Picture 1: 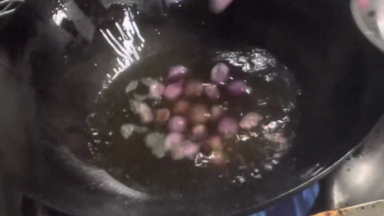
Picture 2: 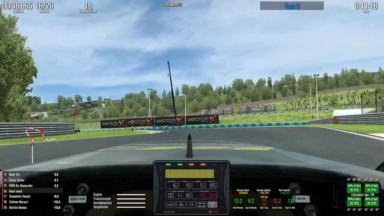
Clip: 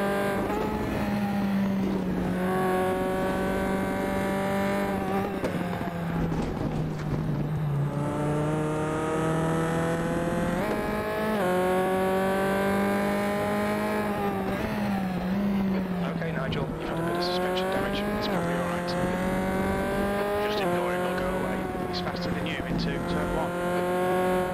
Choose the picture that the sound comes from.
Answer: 2